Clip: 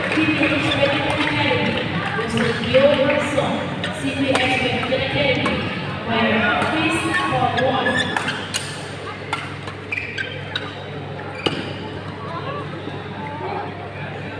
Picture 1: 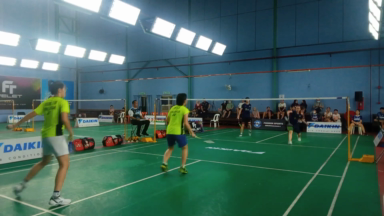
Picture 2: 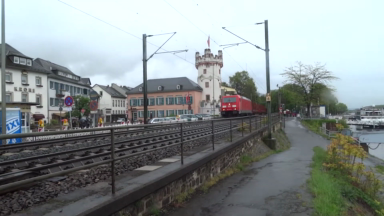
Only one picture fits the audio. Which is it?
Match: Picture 1